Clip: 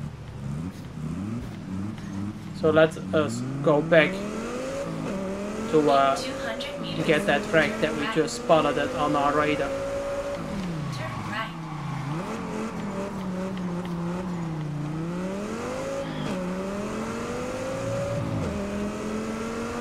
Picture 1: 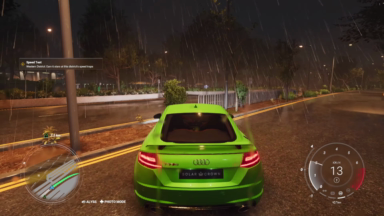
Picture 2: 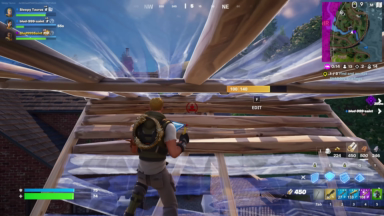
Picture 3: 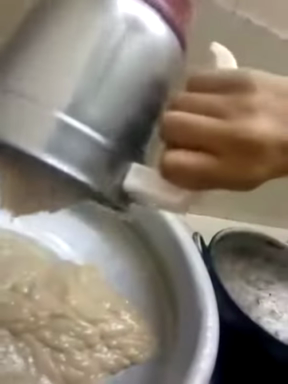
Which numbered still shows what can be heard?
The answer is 1